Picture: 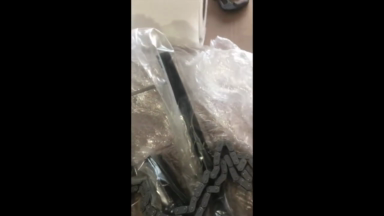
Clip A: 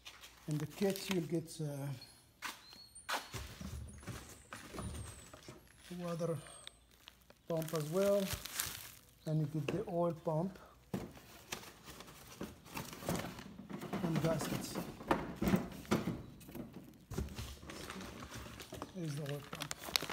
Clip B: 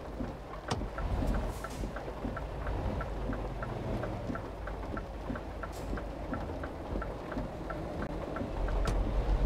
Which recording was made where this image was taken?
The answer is A